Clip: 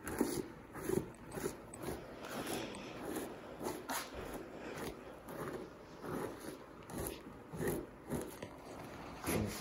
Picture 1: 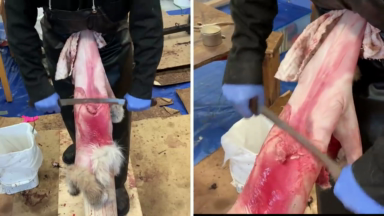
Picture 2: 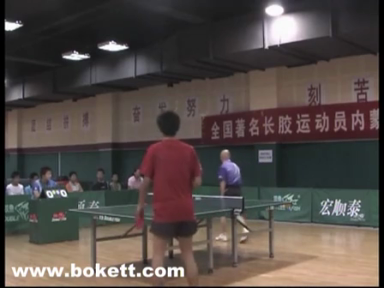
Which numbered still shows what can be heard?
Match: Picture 1